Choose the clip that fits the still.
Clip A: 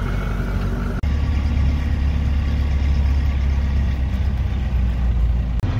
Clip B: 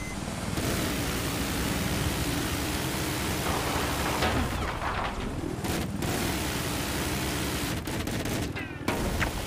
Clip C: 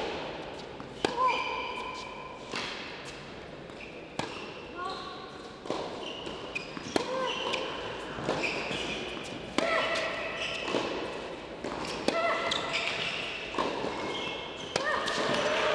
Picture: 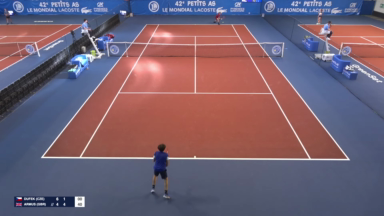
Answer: C